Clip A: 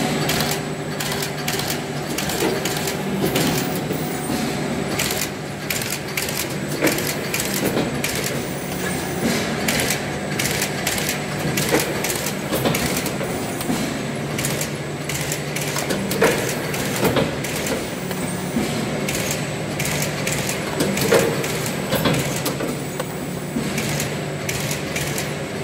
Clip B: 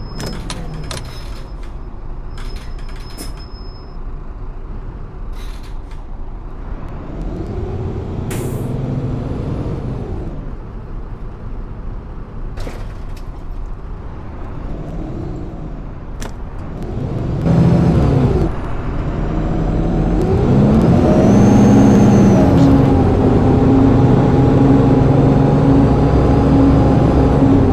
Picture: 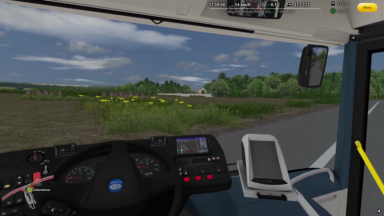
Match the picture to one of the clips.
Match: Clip B